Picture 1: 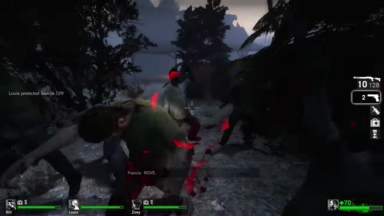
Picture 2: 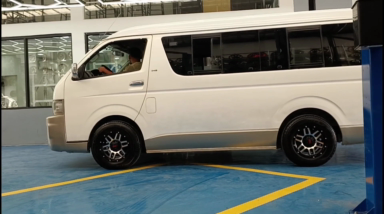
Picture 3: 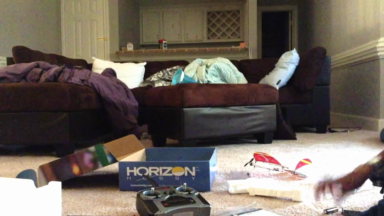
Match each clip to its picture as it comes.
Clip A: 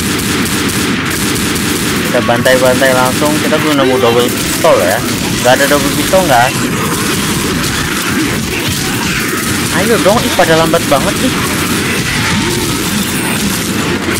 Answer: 1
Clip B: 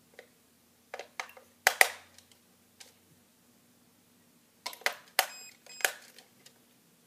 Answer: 3